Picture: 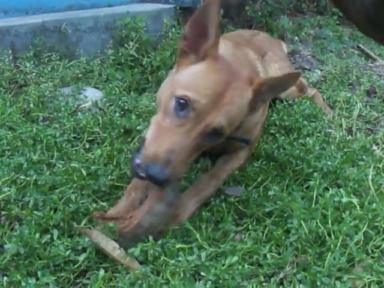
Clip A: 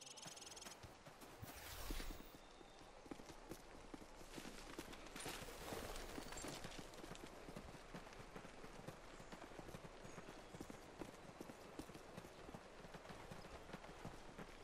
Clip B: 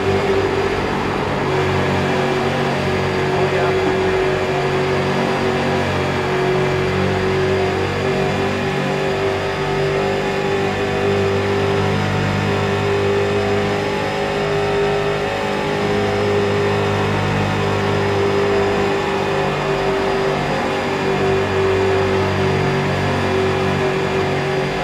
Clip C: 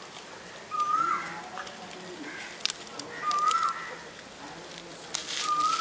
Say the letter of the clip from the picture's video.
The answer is C